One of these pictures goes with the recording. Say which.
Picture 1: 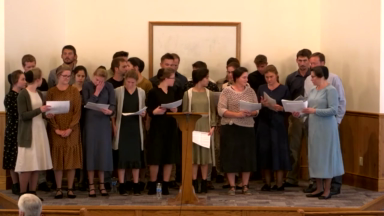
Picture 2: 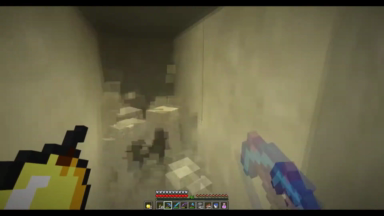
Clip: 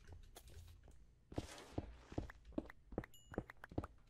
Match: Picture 2